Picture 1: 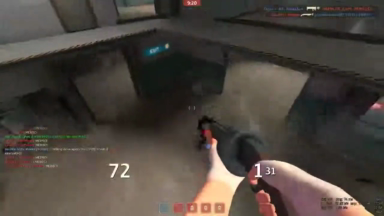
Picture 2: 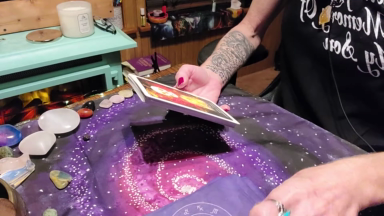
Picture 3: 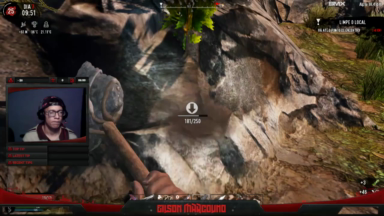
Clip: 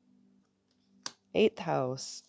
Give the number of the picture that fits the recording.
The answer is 2